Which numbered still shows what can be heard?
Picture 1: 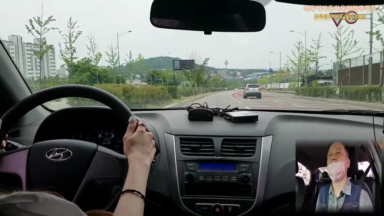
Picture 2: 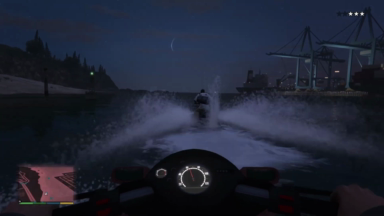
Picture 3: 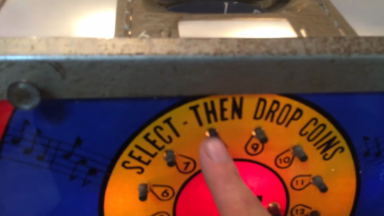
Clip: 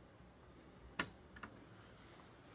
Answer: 3